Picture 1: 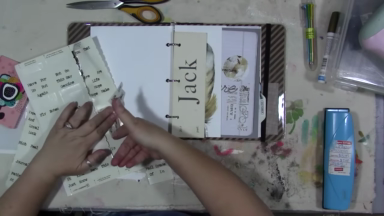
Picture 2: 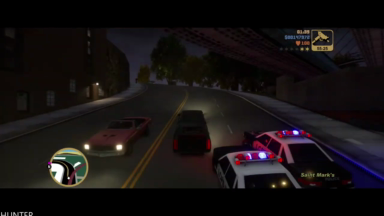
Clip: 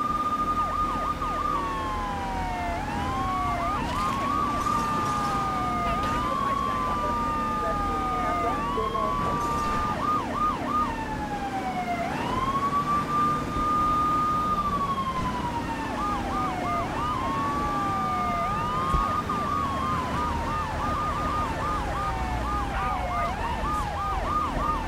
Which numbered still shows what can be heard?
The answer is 2